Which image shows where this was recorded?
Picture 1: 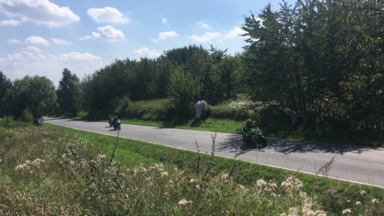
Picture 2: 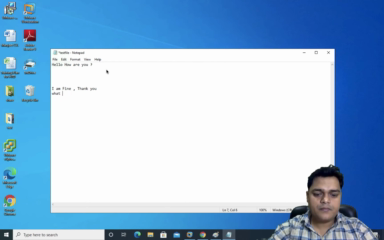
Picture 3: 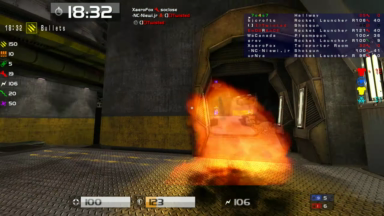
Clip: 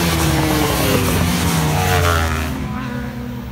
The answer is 1